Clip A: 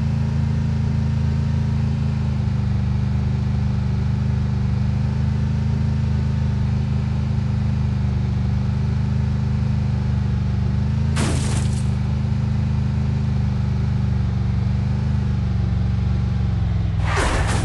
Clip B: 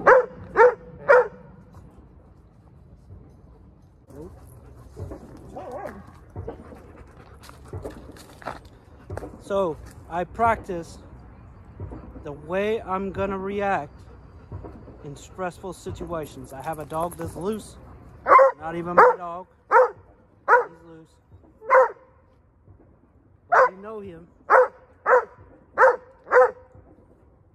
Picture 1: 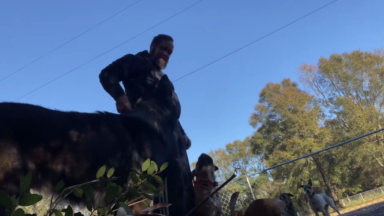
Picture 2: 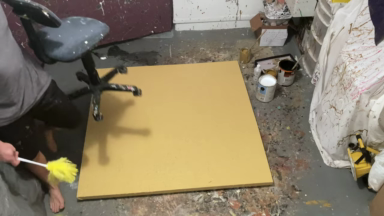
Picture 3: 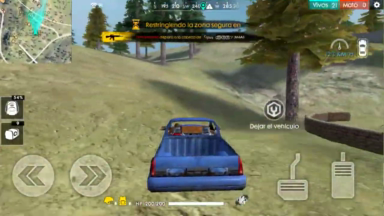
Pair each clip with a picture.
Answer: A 3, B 1